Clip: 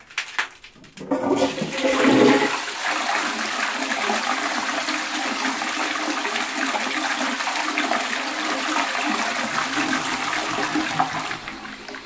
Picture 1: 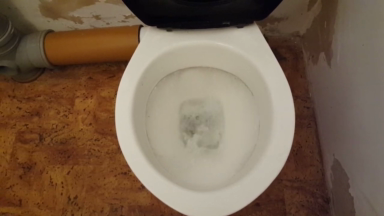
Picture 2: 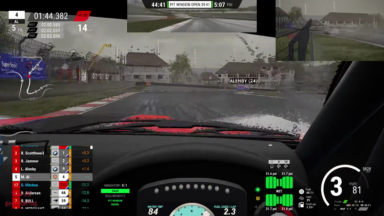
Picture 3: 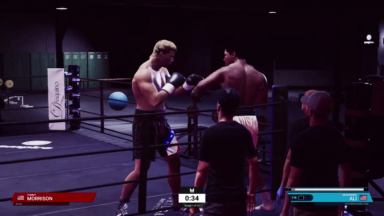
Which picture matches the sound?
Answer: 1